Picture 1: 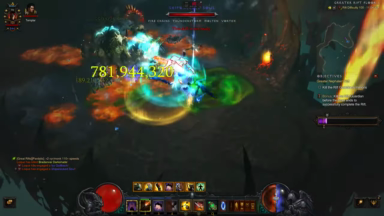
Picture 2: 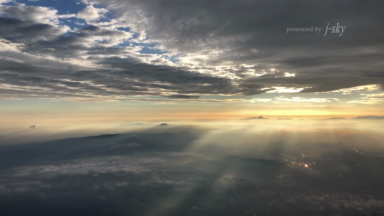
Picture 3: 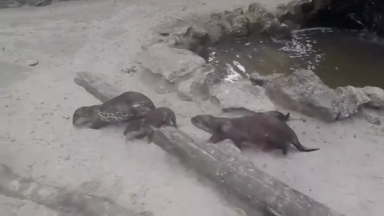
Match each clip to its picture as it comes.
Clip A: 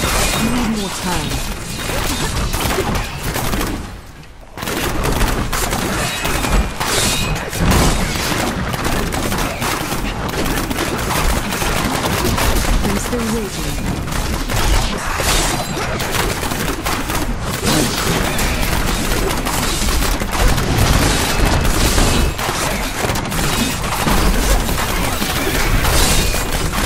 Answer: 1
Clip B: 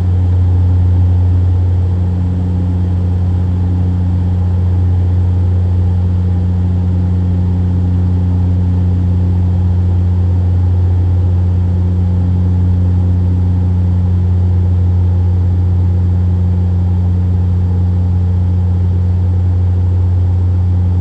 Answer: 2